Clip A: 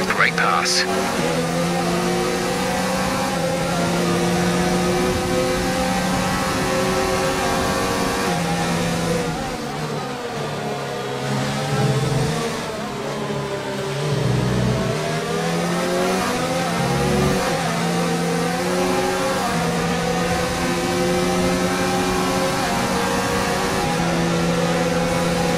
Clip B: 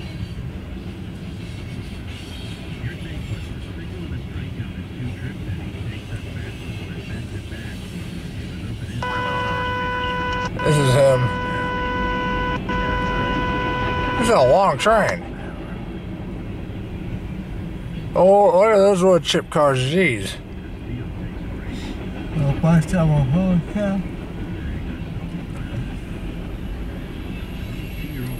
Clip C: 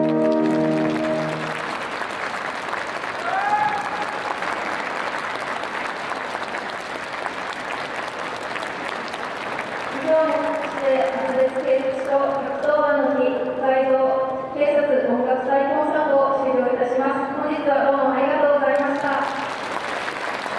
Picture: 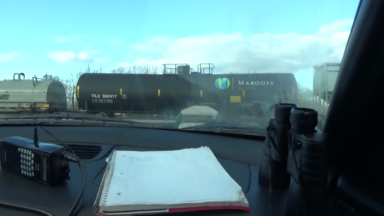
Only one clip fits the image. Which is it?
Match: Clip B